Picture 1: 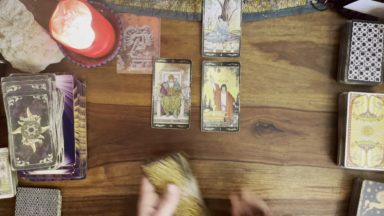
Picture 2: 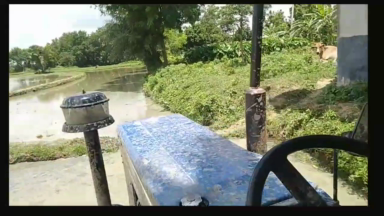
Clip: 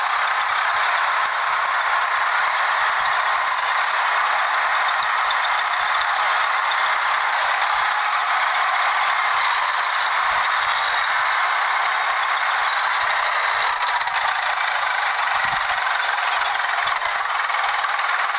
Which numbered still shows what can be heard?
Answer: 2